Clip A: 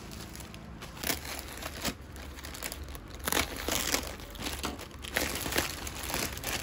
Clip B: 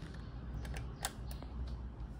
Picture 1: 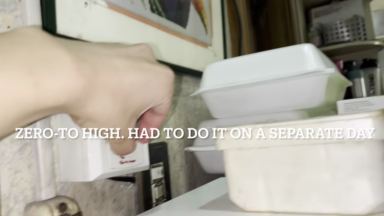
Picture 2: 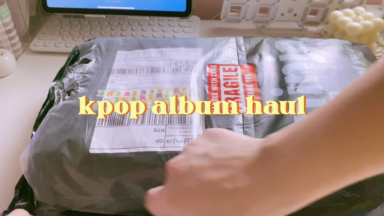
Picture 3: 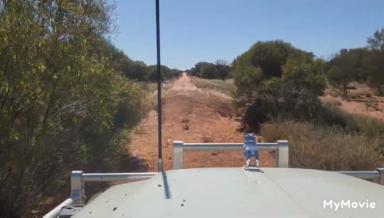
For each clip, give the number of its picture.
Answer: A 2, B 1